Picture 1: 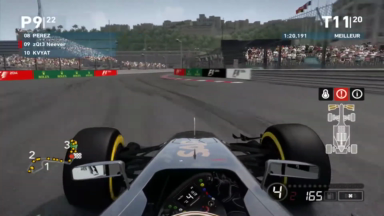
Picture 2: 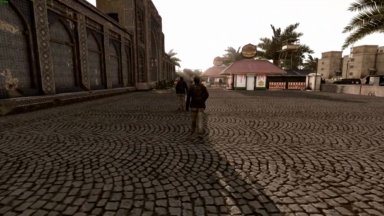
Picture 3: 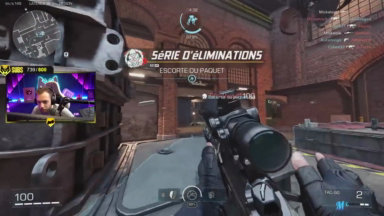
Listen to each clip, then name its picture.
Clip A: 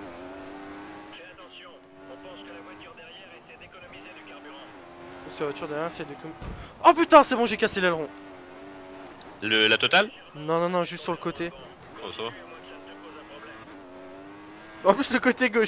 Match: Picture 1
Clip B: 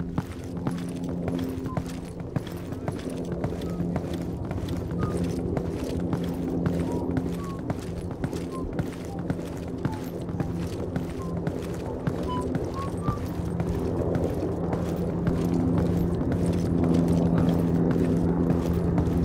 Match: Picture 2